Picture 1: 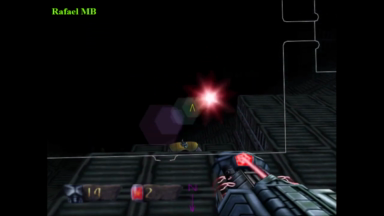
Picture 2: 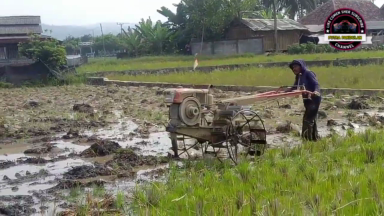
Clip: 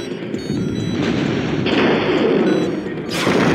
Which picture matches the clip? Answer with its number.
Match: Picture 1